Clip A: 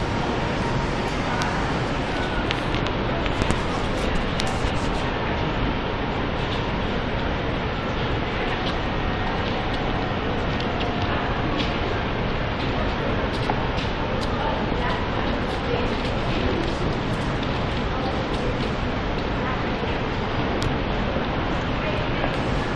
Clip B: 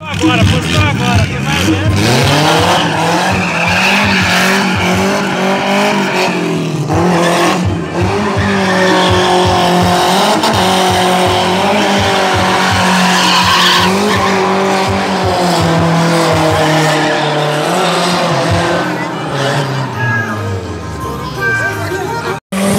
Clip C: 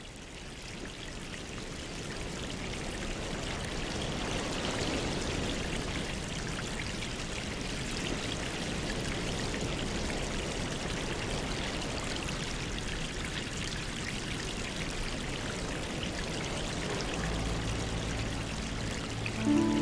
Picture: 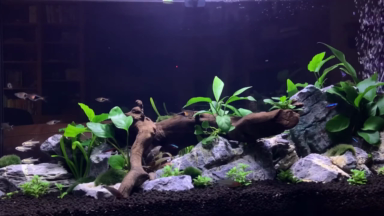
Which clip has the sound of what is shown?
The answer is C